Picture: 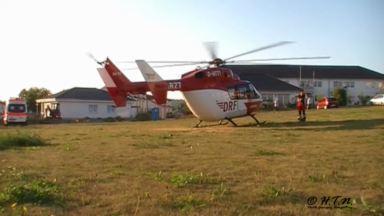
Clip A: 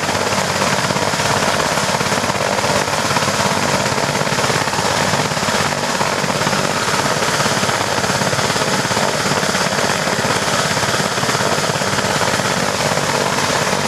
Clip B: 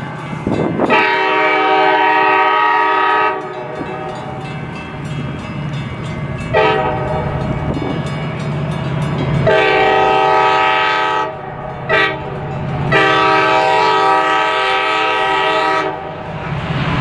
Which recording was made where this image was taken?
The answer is A